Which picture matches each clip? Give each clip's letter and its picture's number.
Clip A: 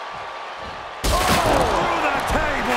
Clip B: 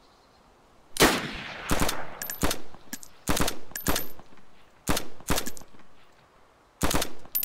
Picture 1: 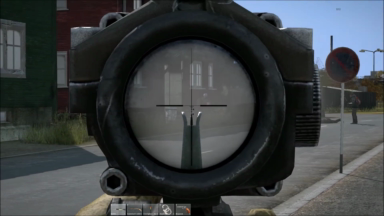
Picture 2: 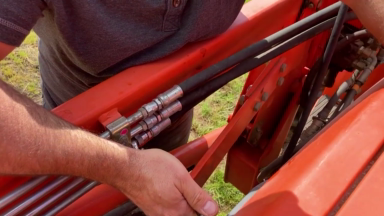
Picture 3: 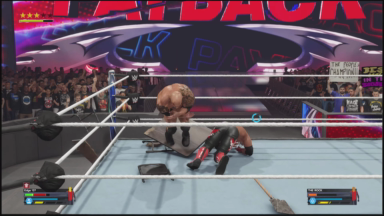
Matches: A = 3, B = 1